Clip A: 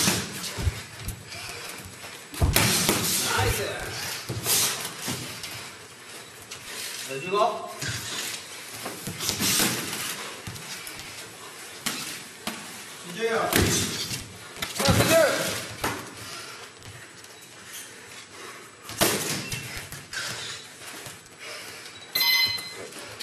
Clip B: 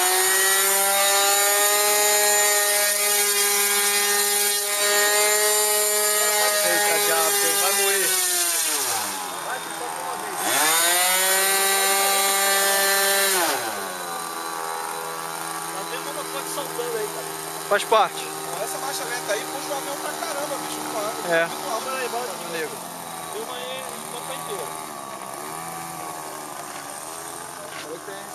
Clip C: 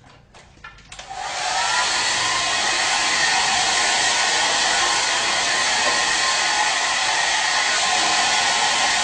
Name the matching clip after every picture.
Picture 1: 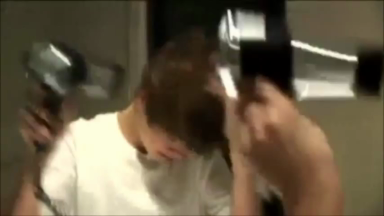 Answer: C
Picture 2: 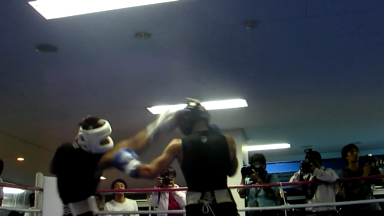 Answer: A